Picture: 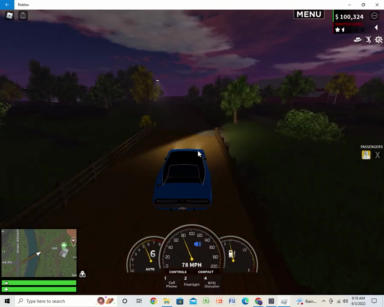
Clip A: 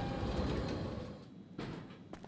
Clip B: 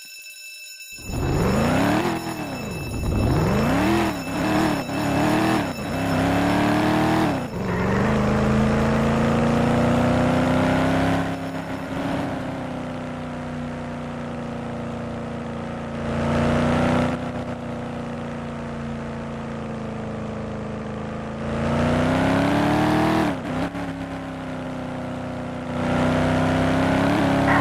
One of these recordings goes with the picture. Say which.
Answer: B